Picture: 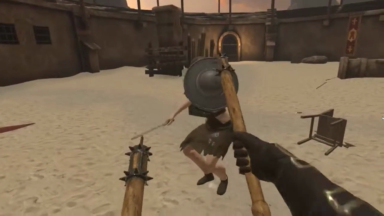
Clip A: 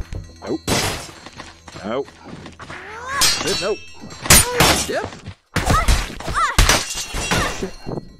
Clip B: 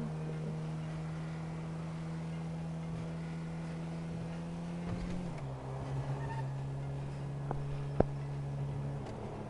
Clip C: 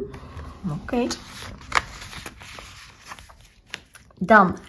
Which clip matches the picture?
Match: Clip A